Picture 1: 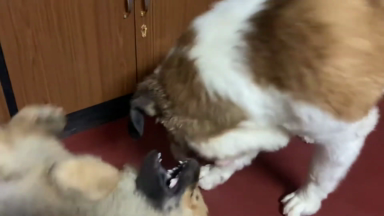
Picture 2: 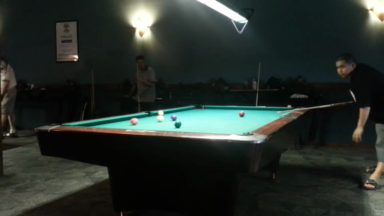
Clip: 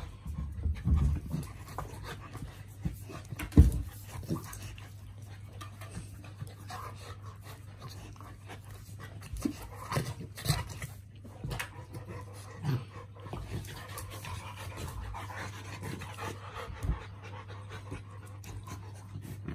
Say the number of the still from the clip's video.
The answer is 1